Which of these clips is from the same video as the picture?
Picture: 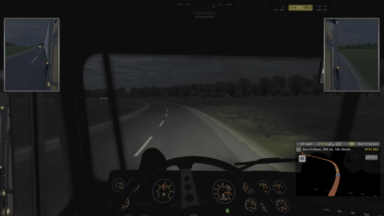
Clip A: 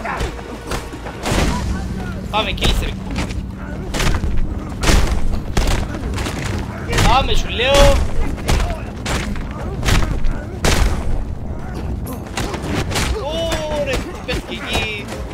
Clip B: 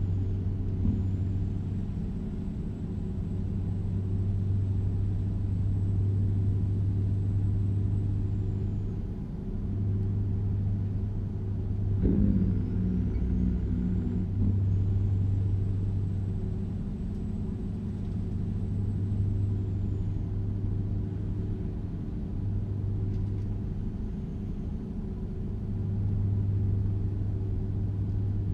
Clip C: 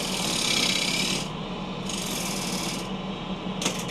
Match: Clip B